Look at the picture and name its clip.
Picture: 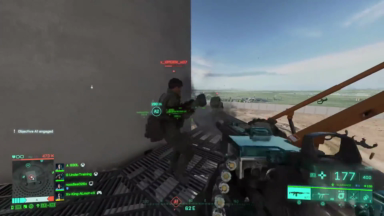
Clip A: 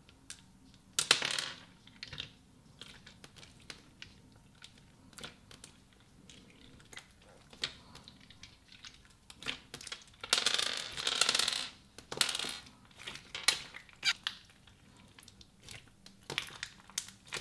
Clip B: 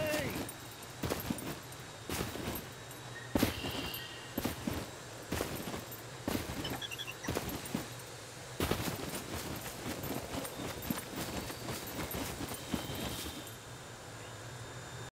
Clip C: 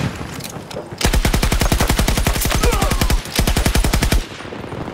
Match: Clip C